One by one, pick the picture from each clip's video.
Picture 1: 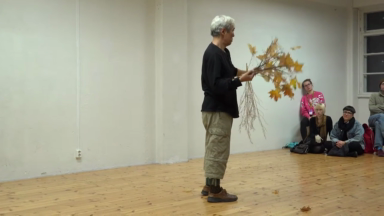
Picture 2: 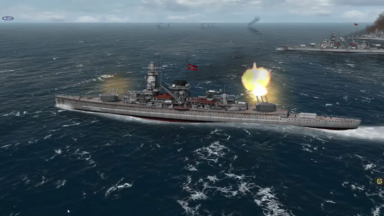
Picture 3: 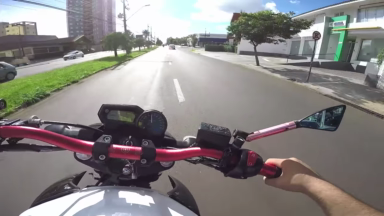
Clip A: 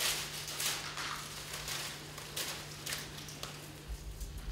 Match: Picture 1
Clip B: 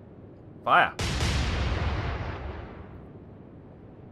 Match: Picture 2